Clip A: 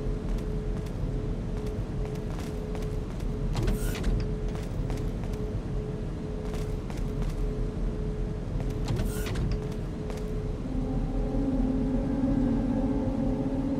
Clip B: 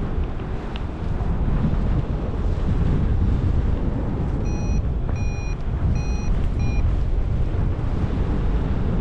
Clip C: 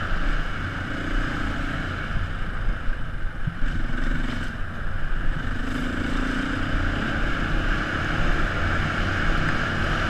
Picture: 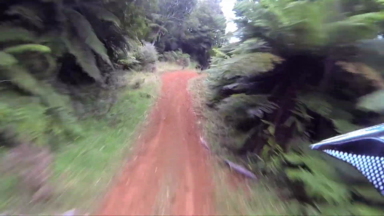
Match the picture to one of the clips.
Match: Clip C